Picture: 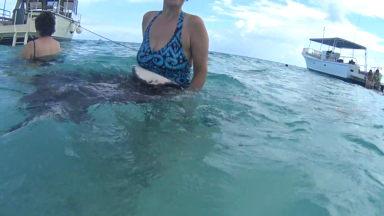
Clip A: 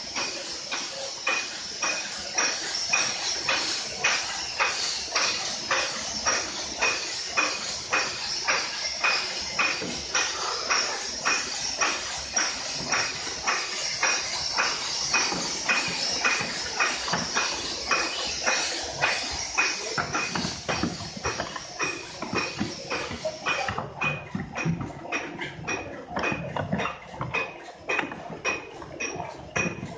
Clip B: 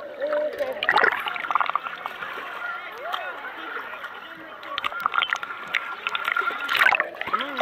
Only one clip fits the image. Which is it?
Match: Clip B